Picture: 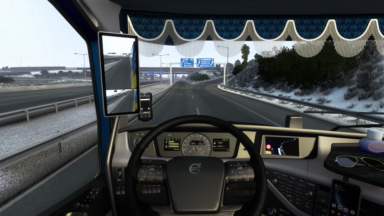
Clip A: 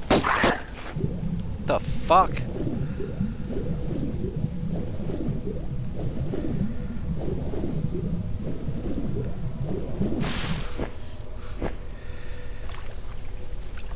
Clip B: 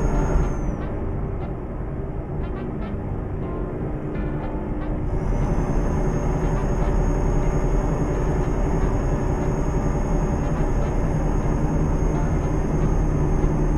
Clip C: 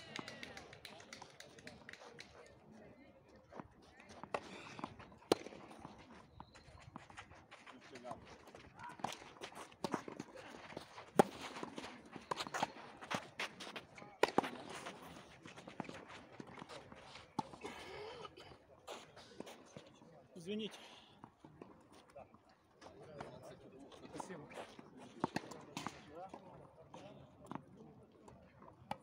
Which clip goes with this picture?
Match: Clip B